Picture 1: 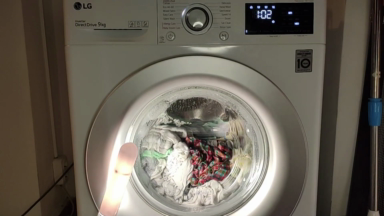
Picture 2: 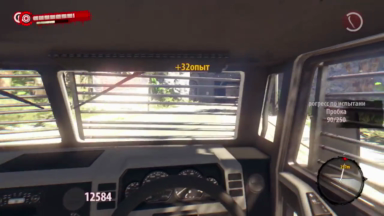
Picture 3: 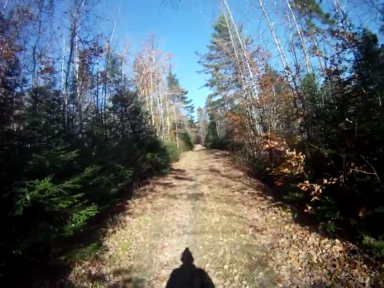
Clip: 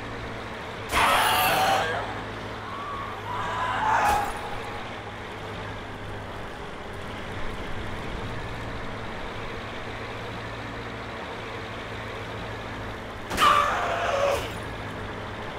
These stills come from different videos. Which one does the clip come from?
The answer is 2